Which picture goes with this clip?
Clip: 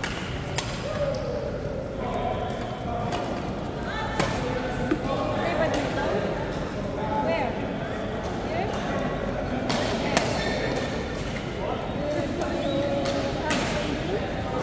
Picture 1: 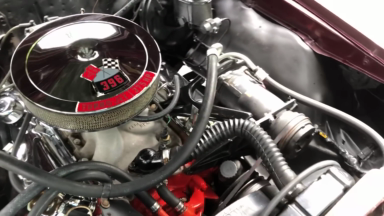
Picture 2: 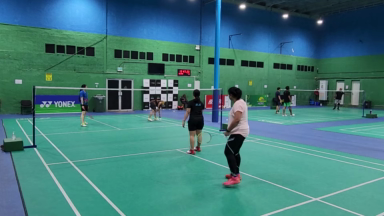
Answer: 2